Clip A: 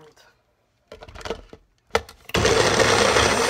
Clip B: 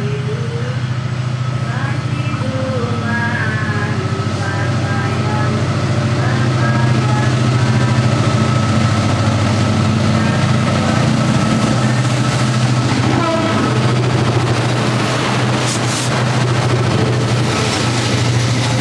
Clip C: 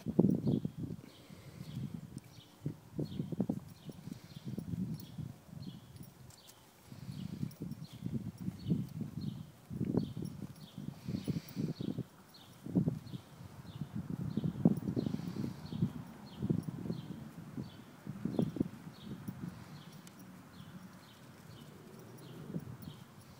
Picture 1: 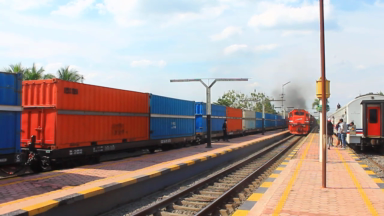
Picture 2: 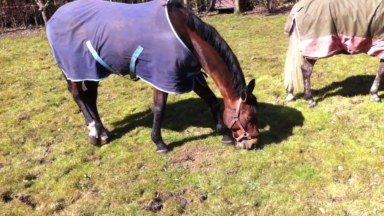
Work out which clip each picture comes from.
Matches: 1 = B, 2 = C